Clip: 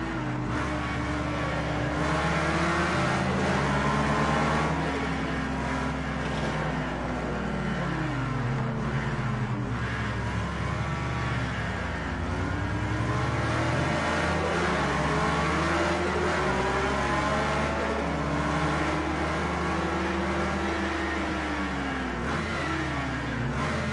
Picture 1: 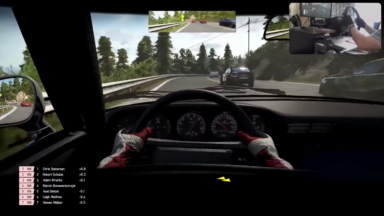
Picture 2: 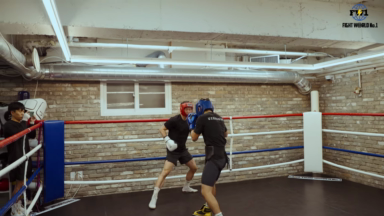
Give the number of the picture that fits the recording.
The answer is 1